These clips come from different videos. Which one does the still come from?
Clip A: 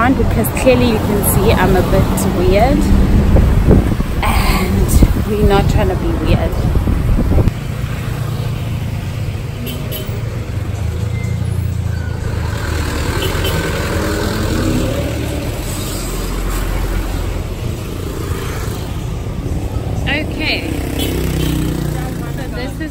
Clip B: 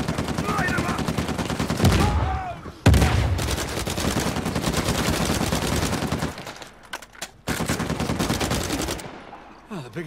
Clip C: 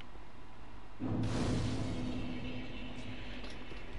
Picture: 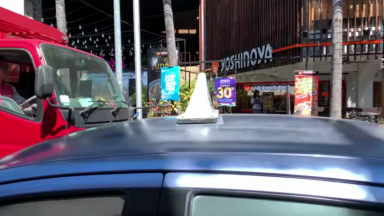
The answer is A